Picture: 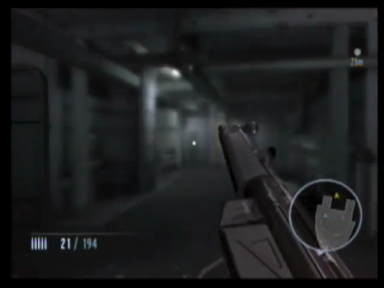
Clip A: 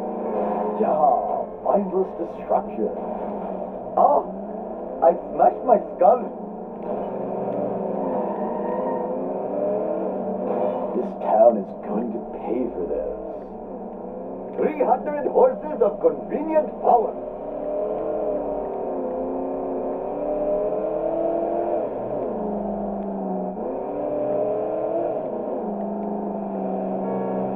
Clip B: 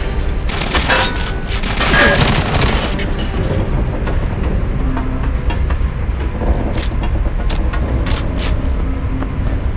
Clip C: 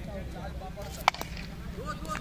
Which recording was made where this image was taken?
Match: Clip B